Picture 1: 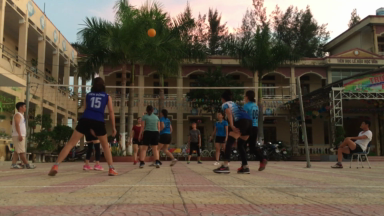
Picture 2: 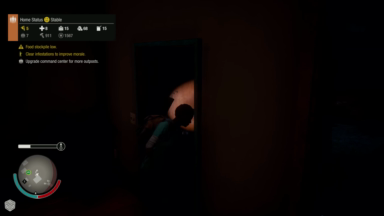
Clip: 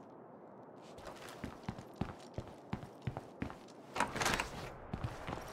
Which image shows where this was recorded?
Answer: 2